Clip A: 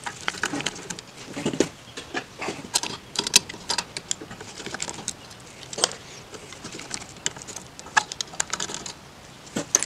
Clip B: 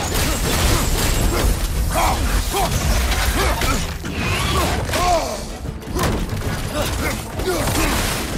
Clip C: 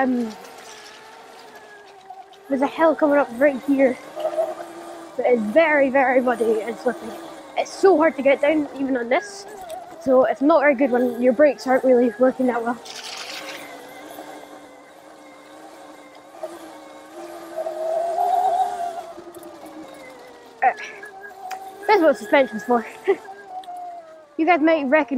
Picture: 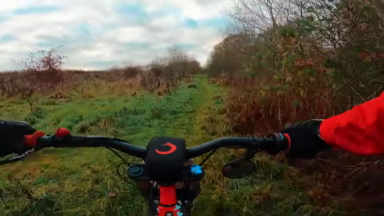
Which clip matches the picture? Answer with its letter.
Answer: C